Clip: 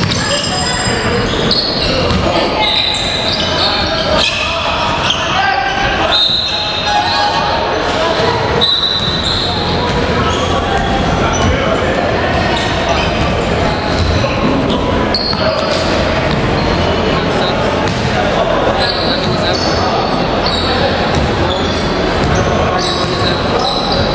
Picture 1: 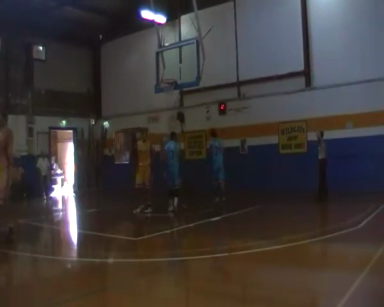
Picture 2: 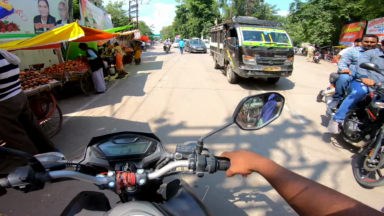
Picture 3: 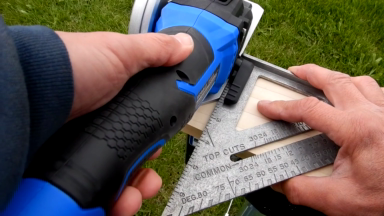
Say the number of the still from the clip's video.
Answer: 1